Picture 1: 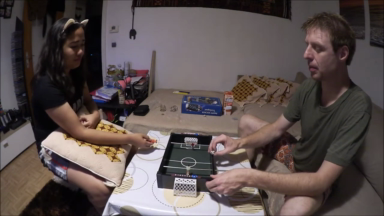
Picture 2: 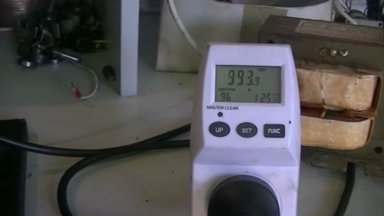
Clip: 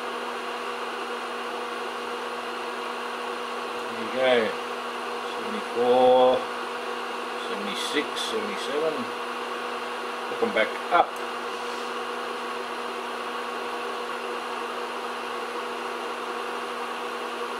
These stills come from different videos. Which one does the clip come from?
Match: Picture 2